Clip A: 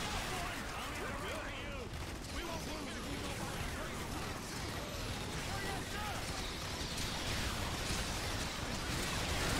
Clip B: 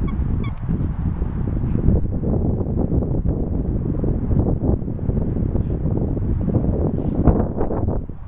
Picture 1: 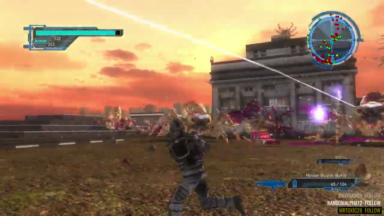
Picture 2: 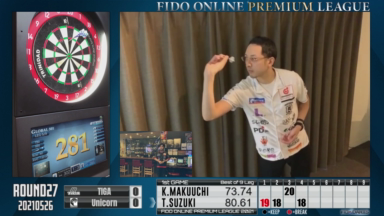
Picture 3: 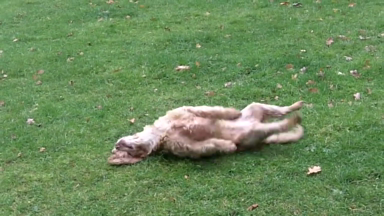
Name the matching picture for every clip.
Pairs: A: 1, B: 3